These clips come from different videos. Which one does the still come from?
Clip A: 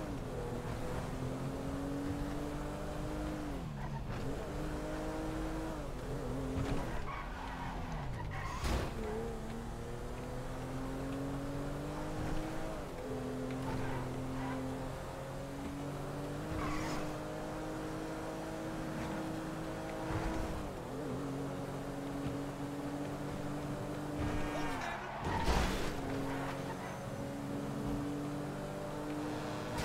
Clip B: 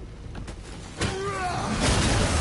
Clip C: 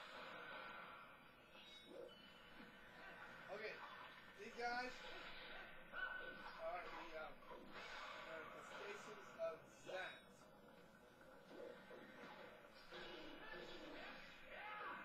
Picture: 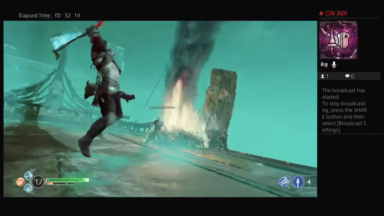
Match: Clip B